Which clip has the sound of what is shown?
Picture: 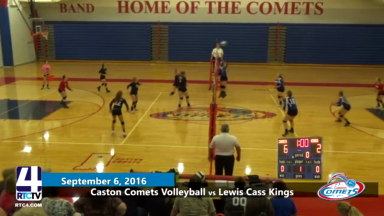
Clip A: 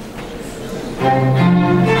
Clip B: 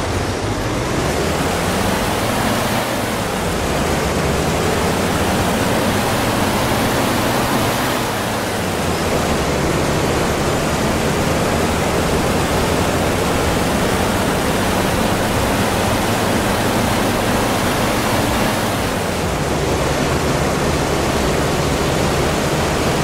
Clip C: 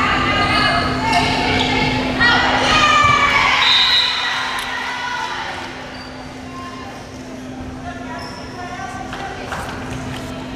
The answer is C